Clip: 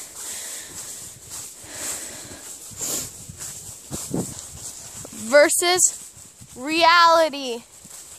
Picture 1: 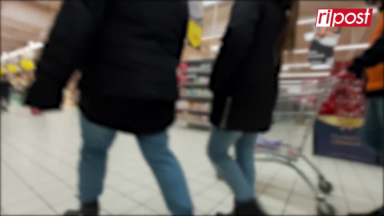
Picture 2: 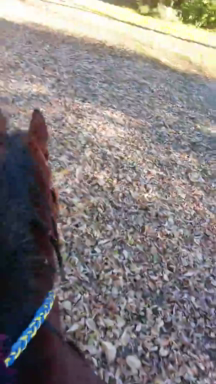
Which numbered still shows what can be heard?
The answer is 2